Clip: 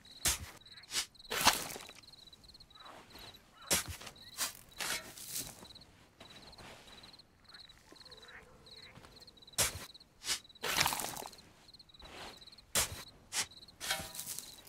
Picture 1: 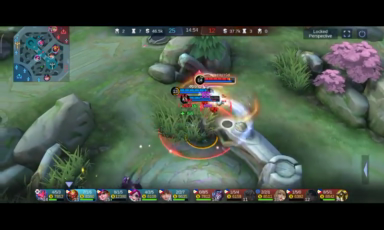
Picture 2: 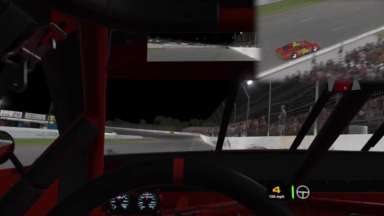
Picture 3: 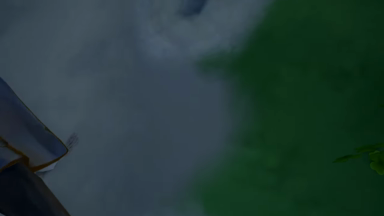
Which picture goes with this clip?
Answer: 3